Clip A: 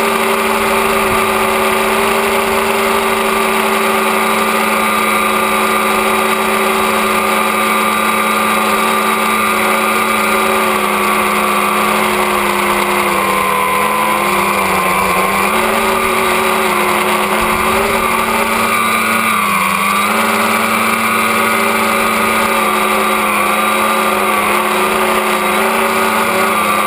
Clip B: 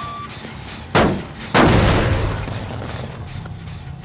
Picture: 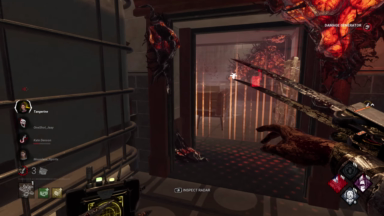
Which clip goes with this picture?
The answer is B